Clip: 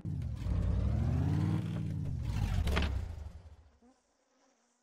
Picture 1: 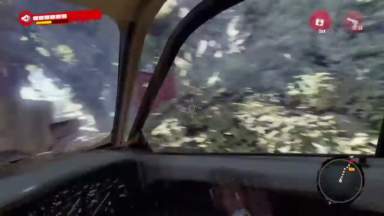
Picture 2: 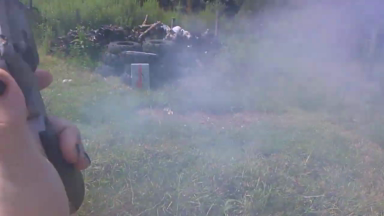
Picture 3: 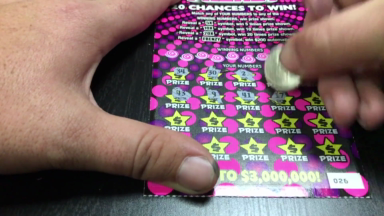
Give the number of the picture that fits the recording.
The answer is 1